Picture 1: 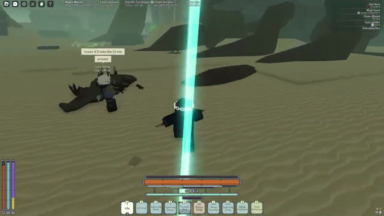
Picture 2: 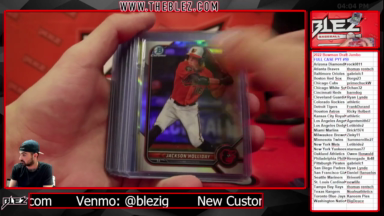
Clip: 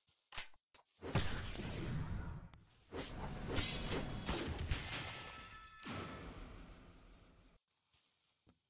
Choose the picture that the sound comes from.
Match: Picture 1